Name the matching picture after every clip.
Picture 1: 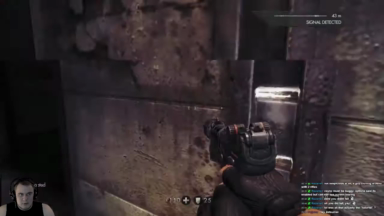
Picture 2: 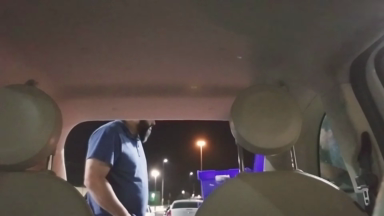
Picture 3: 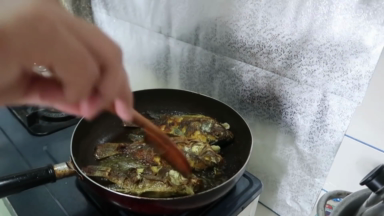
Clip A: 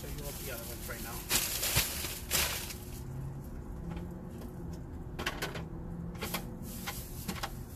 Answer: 2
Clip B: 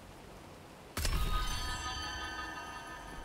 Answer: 1